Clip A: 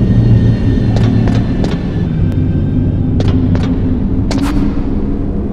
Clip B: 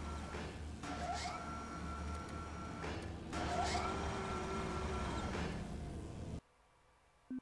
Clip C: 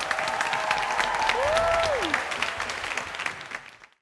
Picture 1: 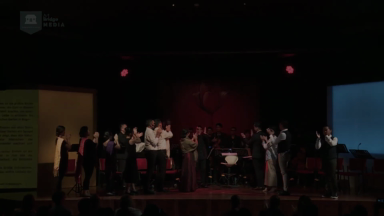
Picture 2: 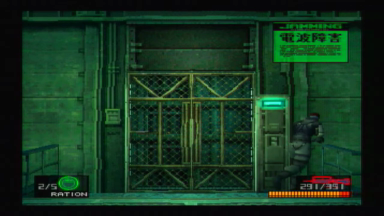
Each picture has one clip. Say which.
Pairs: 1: C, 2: A